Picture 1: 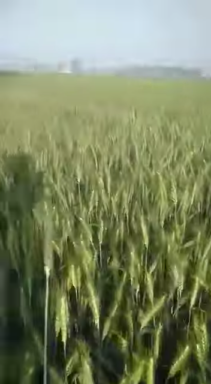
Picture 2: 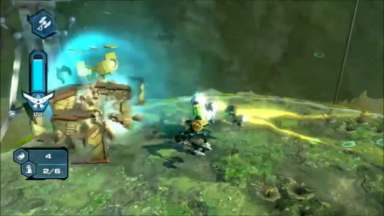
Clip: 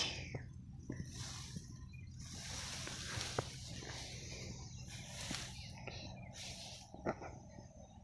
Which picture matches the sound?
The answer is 1